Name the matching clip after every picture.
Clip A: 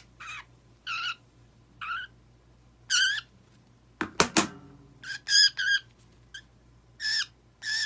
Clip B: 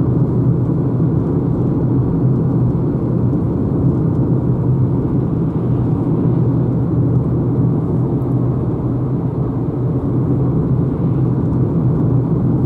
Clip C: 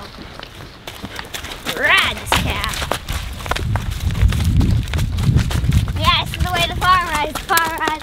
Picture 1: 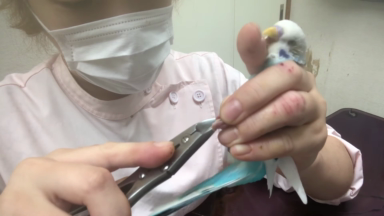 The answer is A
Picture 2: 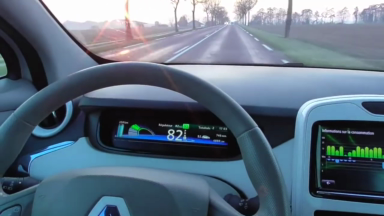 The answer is B